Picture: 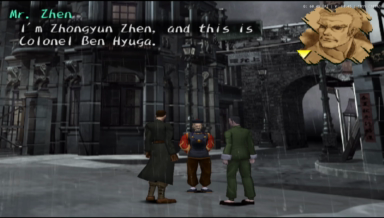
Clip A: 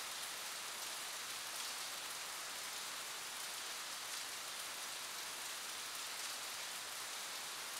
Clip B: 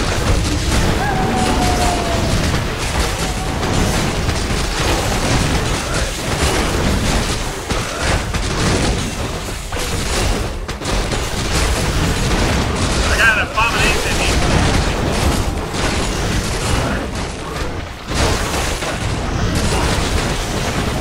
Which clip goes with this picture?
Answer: A